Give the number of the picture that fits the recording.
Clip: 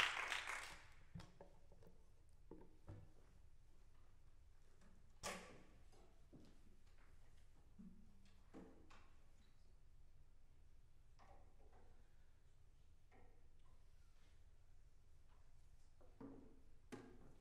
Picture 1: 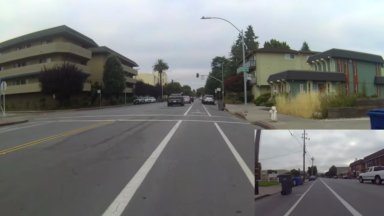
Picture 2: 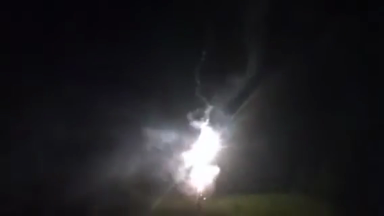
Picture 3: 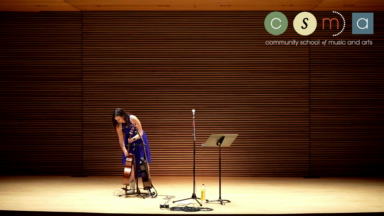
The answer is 3